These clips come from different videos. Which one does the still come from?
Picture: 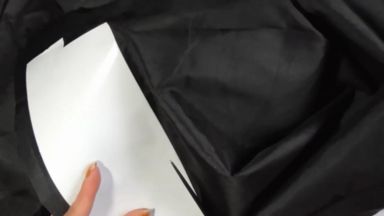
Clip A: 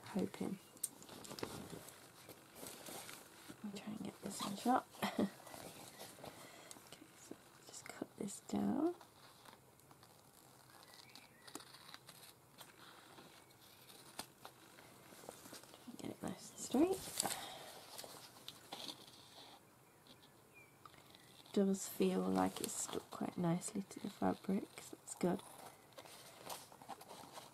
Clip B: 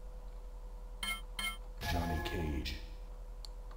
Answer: A